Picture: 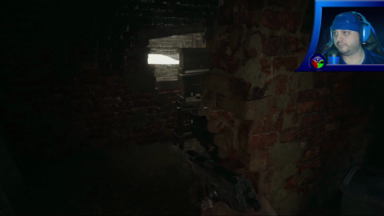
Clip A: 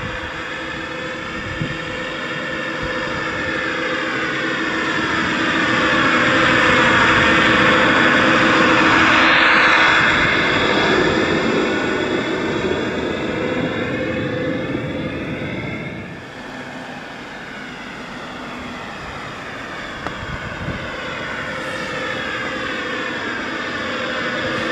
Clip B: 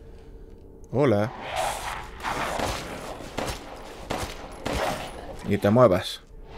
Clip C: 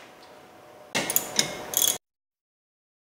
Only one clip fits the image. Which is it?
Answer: B